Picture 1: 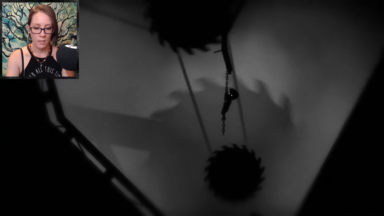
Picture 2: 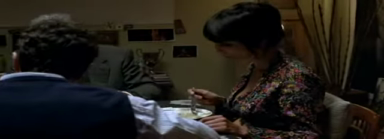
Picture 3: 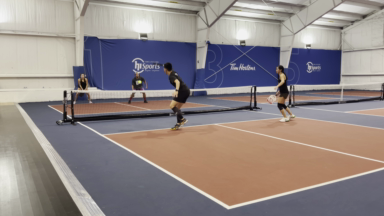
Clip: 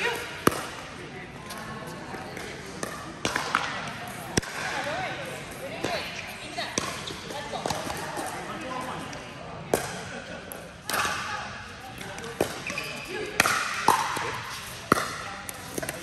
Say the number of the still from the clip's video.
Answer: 3